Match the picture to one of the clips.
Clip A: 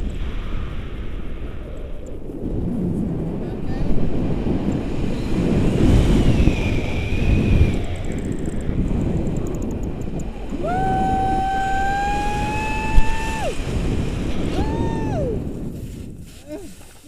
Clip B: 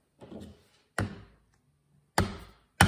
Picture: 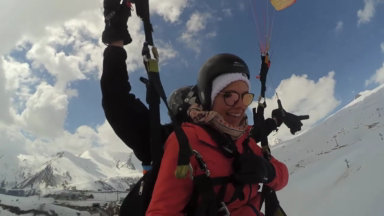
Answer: A